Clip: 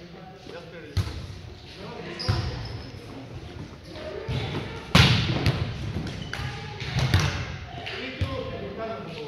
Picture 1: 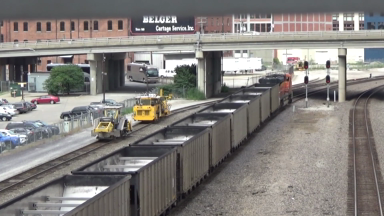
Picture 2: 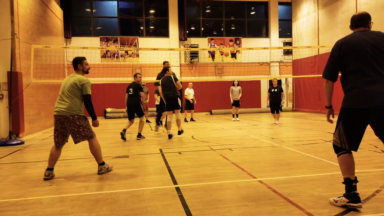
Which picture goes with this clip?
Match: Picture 2